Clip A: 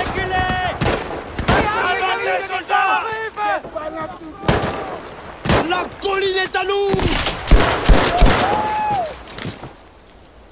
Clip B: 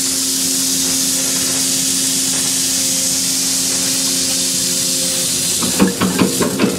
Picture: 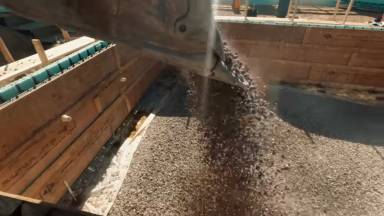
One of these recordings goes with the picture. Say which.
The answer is B